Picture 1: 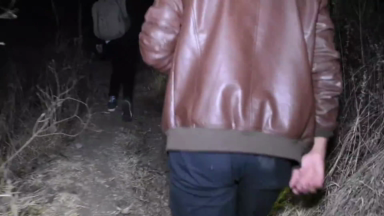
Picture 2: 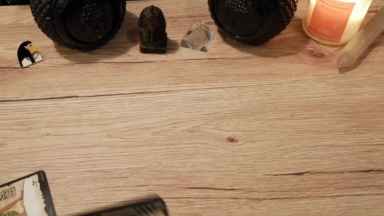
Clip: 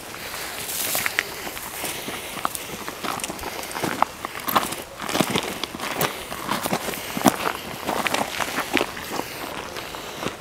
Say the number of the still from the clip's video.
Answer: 1